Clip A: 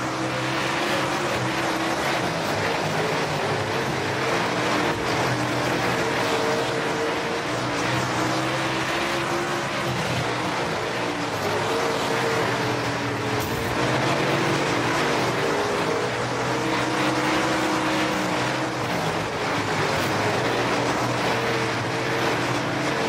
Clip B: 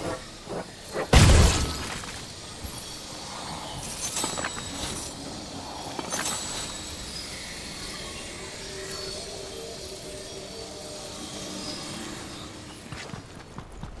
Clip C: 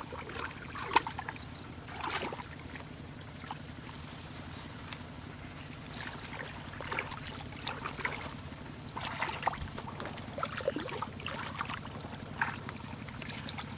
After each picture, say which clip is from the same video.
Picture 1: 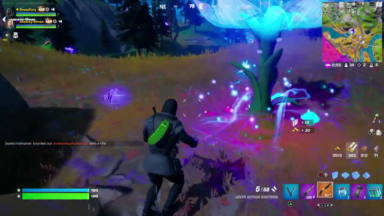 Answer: B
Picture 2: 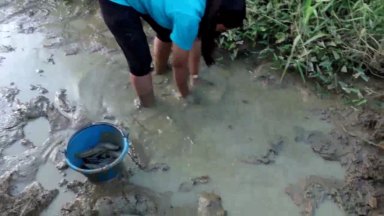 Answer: C